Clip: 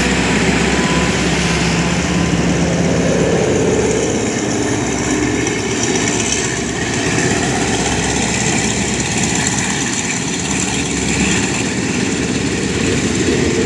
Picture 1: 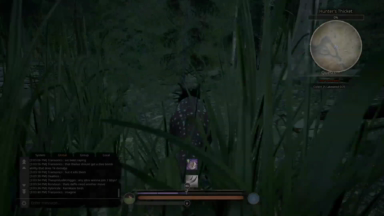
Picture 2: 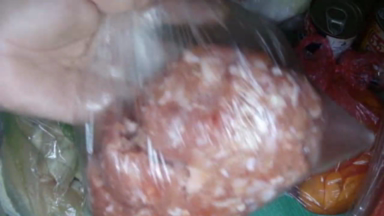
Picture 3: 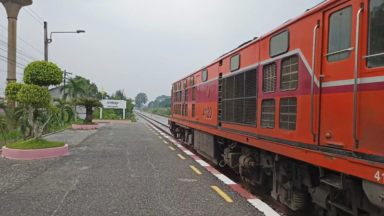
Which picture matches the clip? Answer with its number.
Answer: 3